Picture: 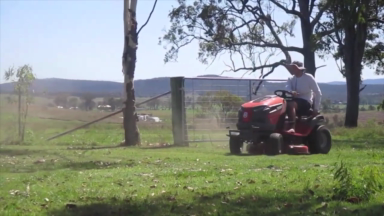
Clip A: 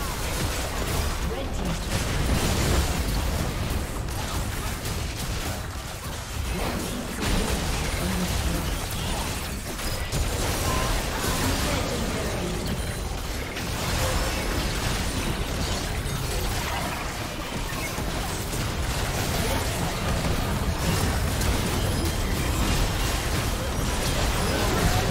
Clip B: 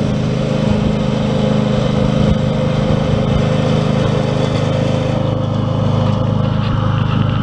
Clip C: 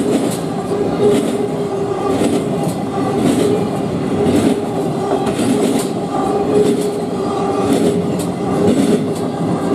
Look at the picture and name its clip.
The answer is B